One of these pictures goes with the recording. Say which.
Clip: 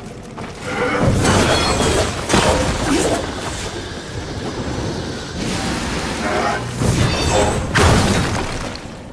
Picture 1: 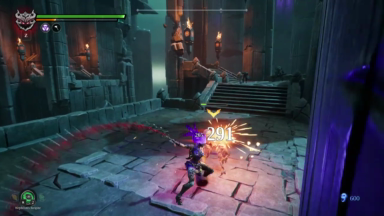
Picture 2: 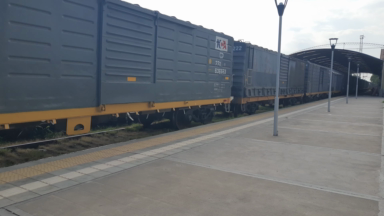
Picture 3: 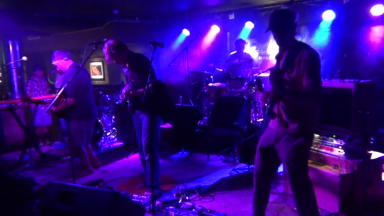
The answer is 1